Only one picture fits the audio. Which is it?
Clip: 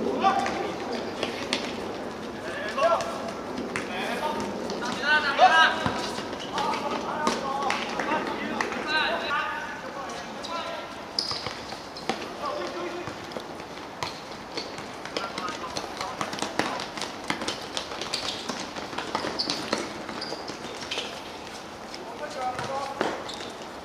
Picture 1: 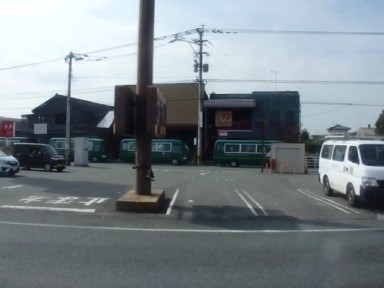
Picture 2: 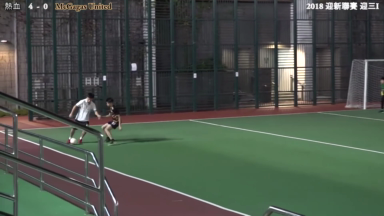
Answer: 2